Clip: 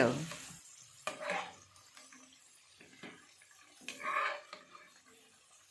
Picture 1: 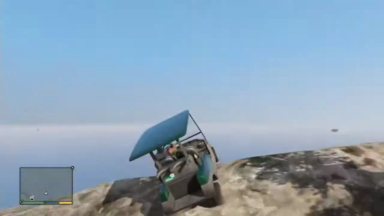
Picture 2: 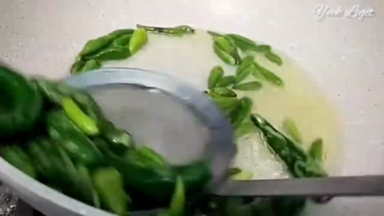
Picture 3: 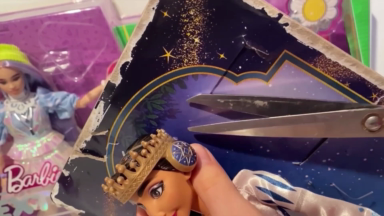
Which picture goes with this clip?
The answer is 2